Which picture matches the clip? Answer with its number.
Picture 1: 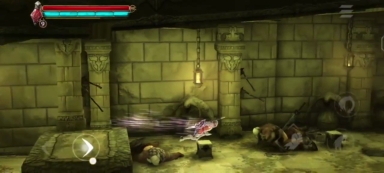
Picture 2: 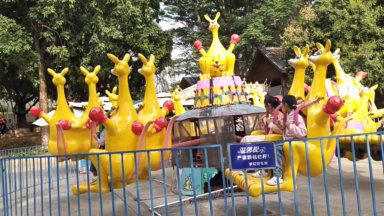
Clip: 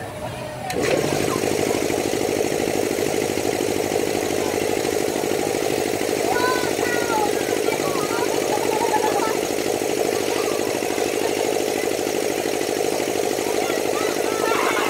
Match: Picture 2